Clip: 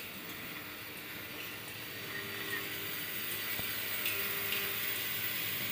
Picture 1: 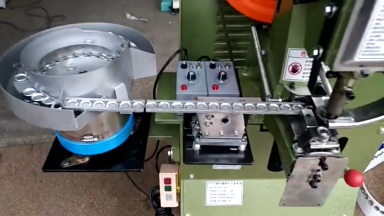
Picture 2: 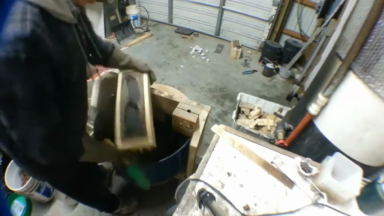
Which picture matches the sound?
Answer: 1